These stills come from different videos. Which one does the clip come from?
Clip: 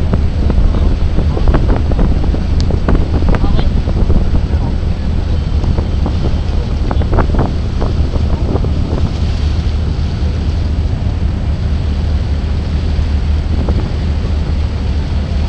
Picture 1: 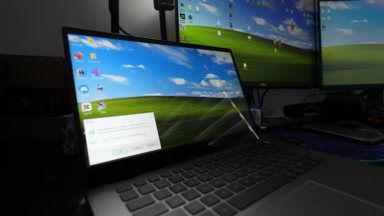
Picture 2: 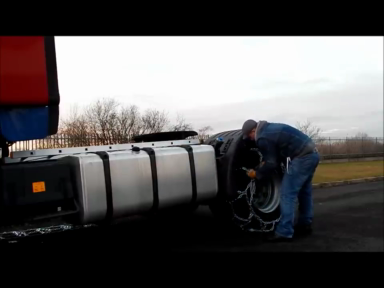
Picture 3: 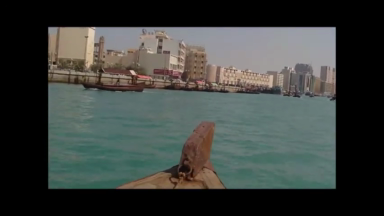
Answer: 3